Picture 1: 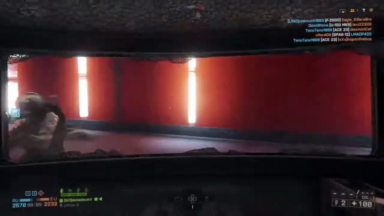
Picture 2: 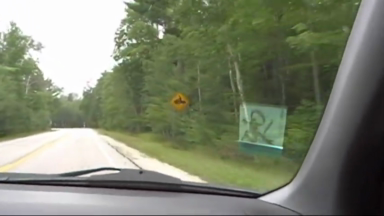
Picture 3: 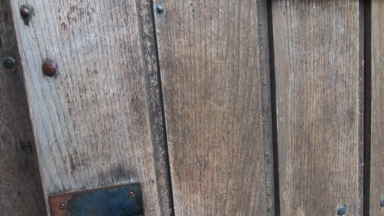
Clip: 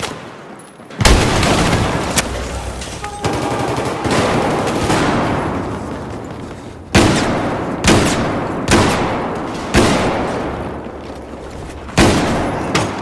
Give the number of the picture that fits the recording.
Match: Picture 1